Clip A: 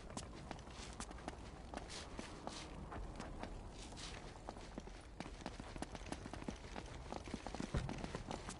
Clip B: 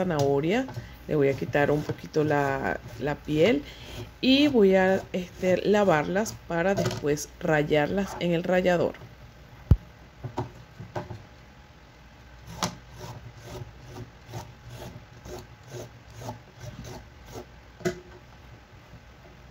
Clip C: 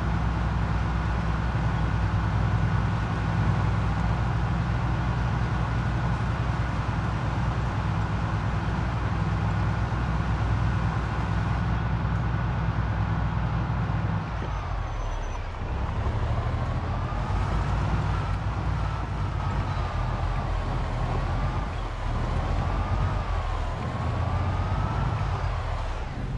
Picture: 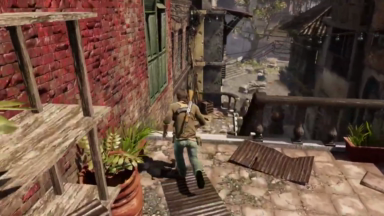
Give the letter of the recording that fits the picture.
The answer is A